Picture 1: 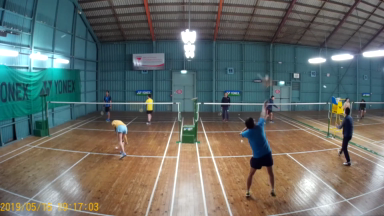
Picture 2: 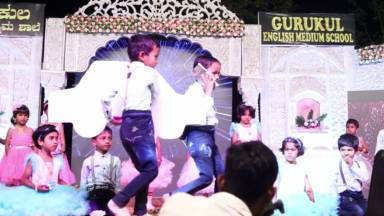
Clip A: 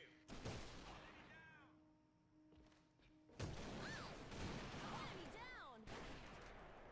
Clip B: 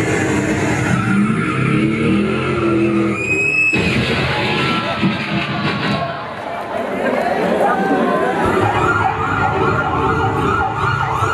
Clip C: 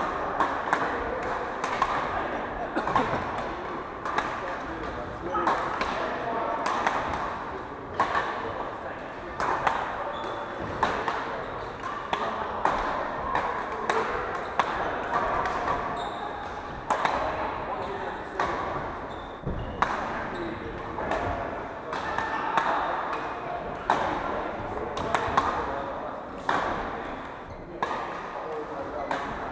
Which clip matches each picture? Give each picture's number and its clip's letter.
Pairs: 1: C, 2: B